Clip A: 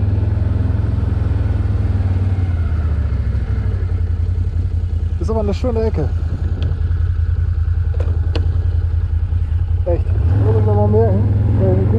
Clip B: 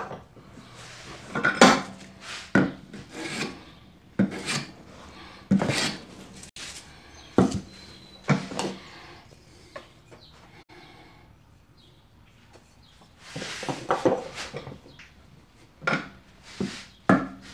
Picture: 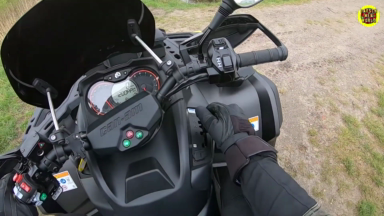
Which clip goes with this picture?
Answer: A